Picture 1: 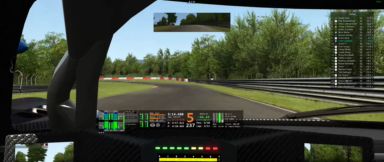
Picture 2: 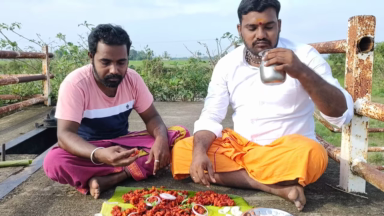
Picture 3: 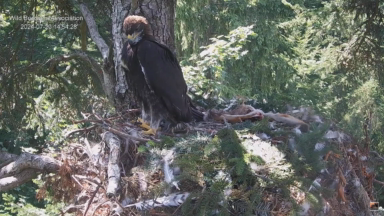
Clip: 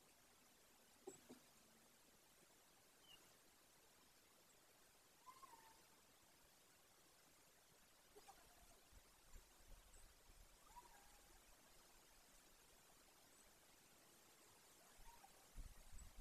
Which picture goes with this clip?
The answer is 3